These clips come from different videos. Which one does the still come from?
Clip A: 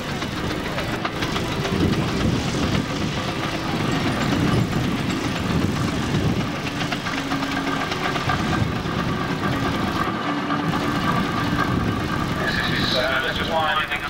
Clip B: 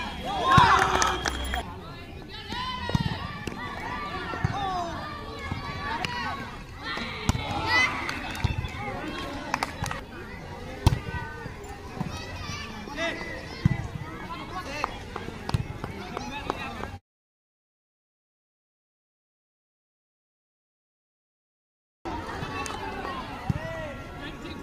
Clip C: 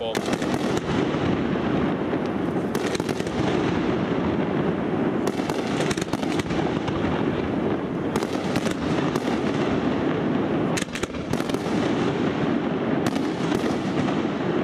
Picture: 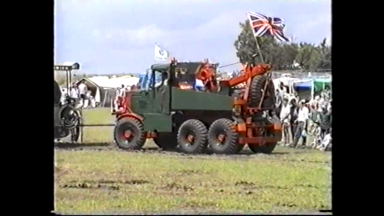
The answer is A